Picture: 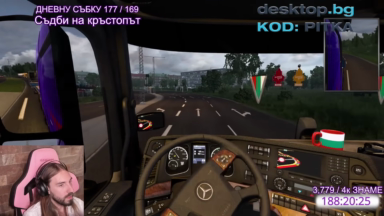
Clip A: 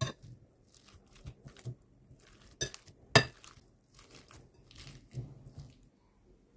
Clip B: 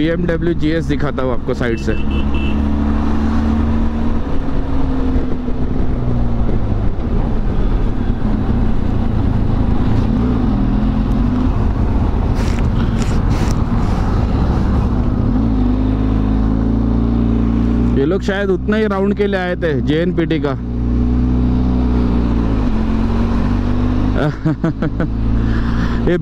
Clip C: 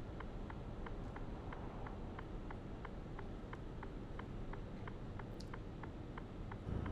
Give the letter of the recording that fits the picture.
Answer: C